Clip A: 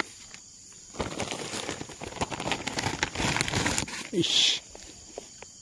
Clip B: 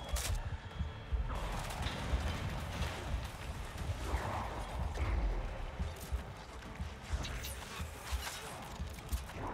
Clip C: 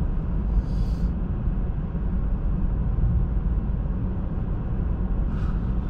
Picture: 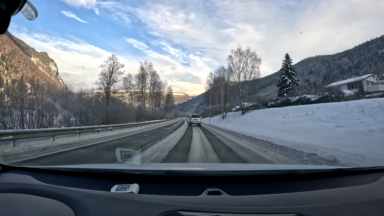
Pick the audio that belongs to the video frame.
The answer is C